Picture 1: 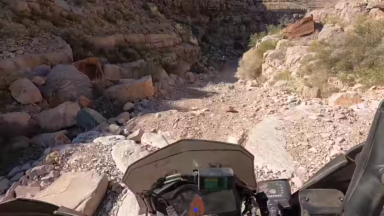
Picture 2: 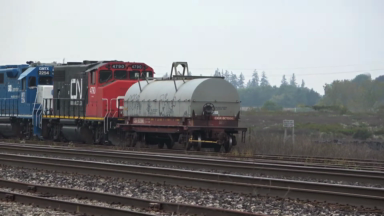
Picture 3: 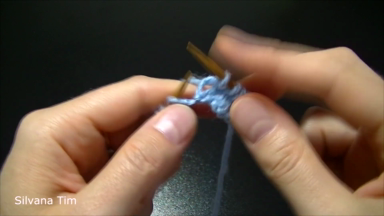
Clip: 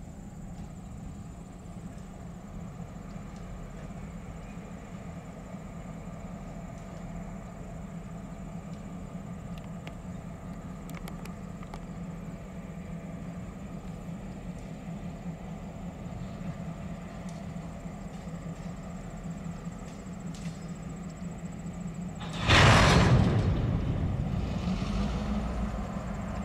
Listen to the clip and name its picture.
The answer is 2